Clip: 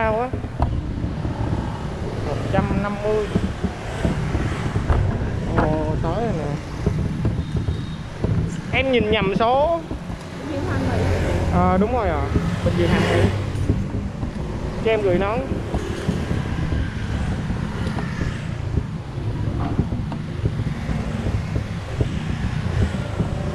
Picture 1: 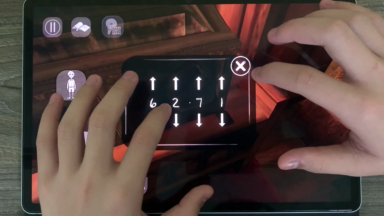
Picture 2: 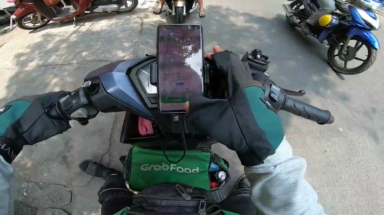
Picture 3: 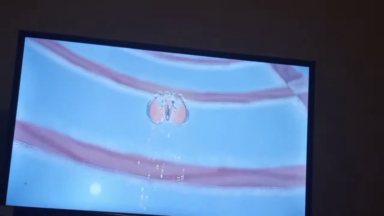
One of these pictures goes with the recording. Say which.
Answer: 2